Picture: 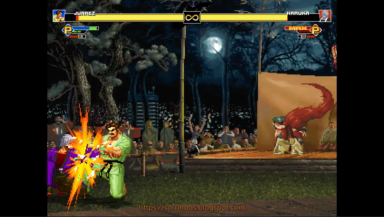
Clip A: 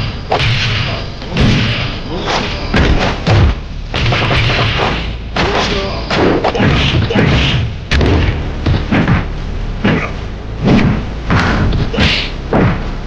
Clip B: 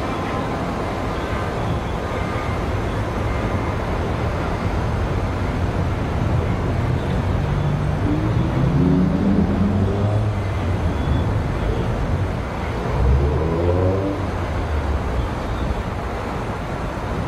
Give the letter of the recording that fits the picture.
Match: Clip A